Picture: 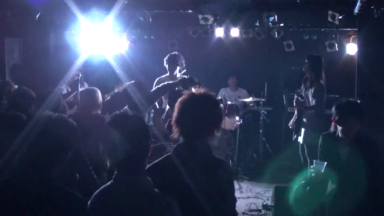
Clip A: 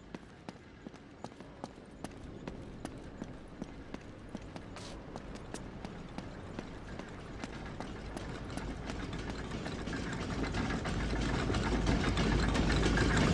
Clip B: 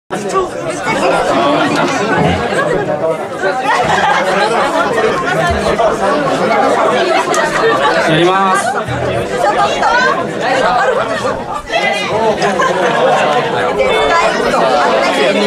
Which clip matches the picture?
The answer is B